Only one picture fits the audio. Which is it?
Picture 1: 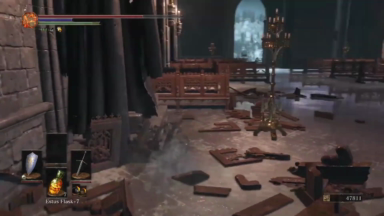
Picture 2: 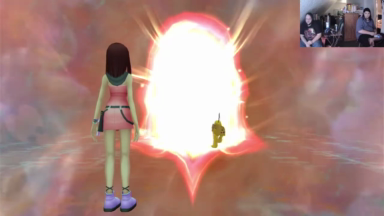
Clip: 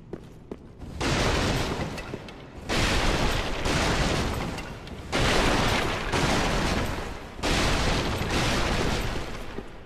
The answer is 1